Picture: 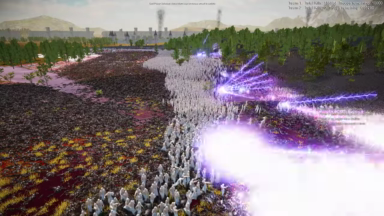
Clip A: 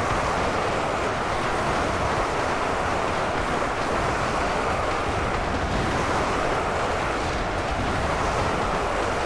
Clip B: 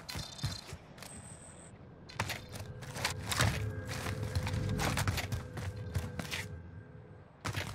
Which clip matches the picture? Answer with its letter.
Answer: A